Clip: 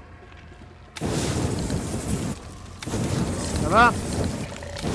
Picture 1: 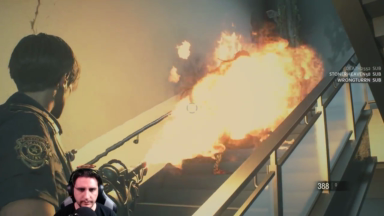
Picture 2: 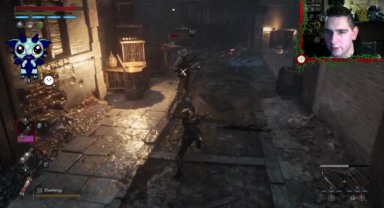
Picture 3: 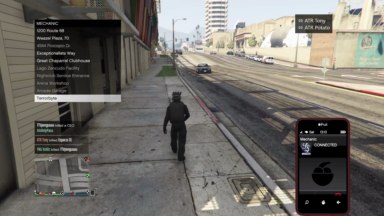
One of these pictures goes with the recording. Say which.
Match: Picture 1